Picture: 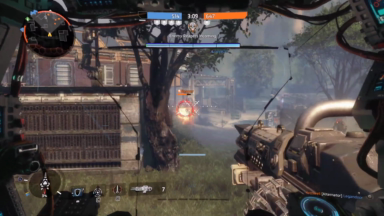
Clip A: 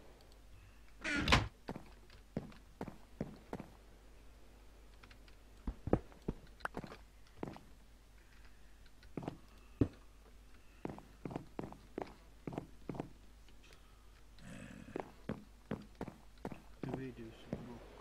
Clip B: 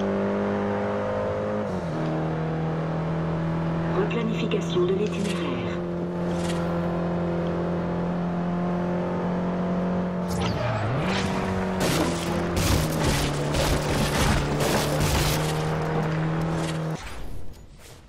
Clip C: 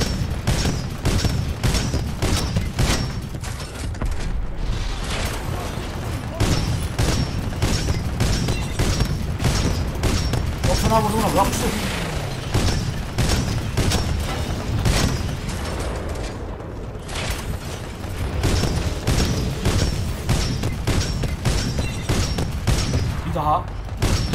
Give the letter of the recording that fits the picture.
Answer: C